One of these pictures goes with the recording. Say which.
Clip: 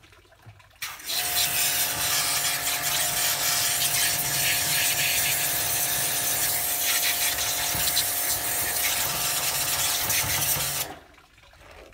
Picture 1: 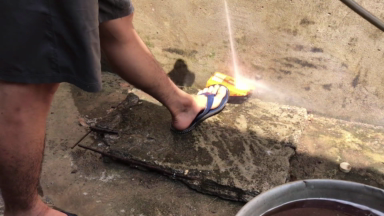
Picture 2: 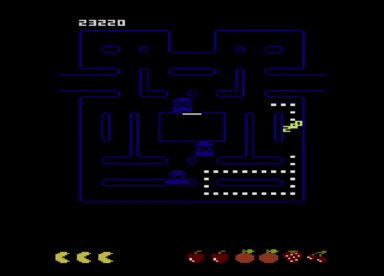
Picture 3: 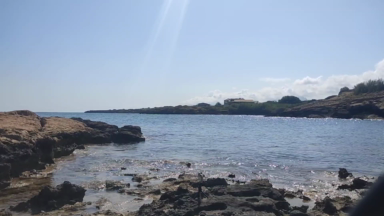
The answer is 1